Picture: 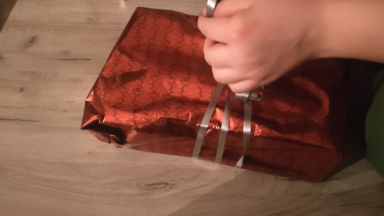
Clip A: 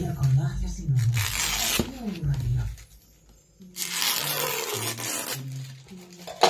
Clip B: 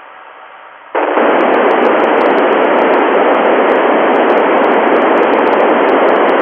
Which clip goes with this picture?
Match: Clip A